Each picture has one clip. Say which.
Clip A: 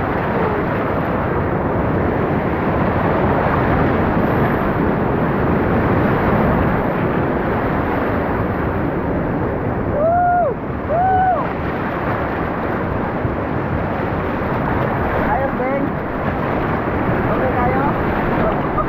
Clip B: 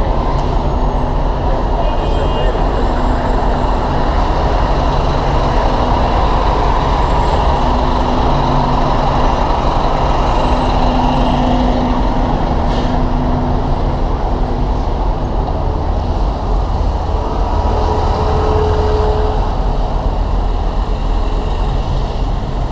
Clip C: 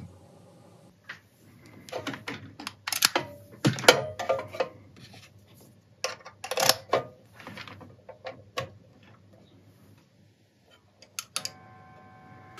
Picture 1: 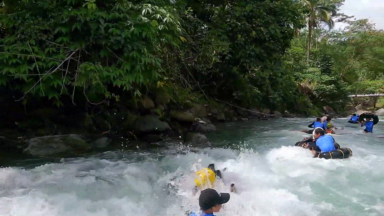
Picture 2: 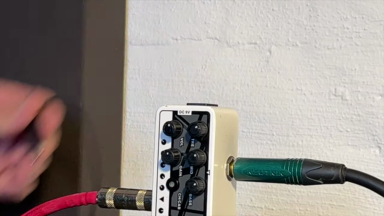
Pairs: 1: A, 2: C